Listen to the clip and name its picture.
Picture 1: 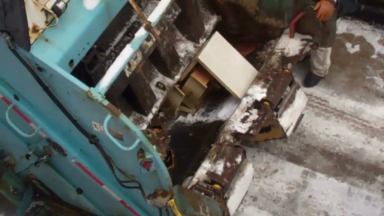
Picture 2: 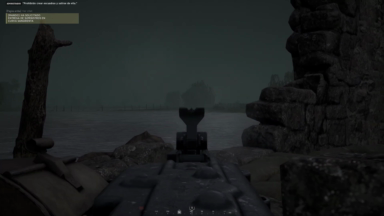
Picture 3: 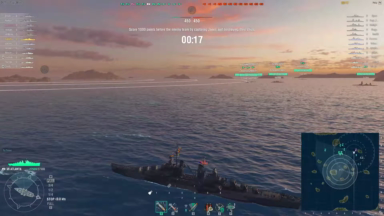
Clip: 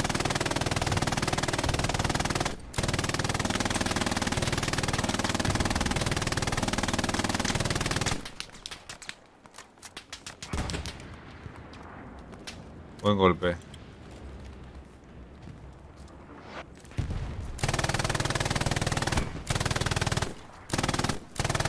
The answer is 2